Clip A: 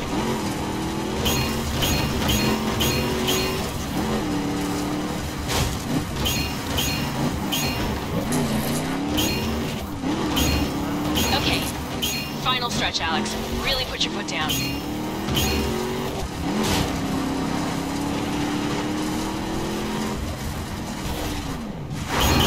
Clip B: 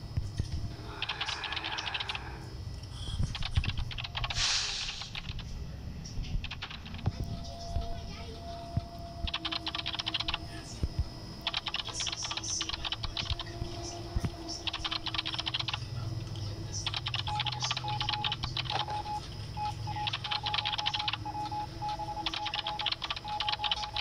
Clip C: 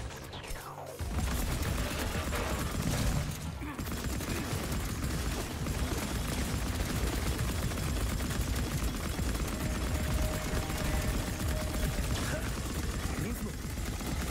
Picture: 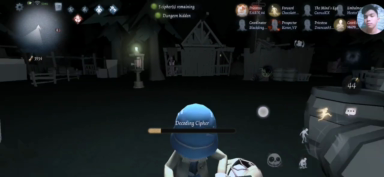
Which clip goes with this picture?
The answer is B